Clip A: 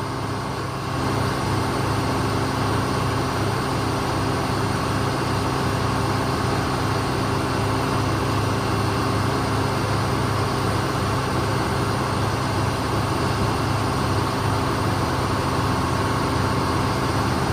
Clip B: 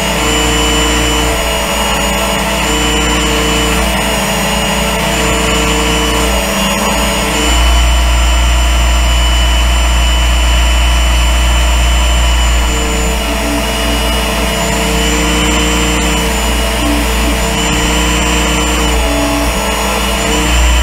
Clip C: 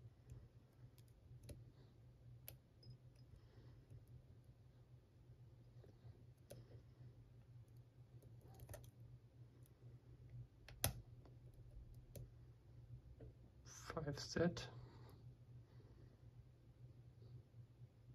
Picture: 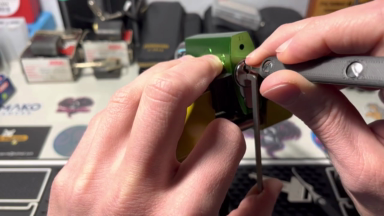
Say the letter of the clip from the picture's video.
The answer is C